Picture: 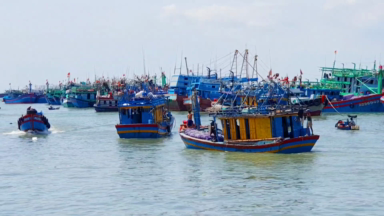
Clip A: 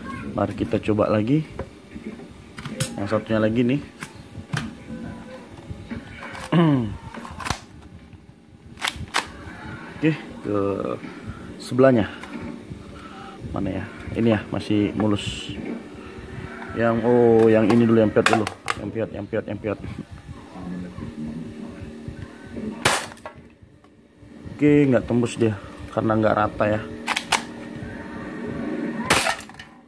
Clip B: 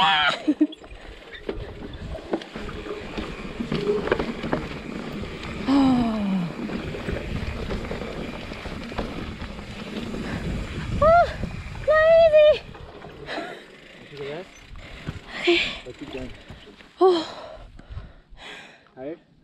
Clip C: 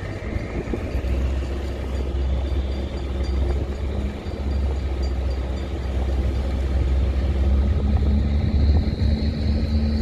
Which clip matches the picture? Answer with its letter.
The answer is C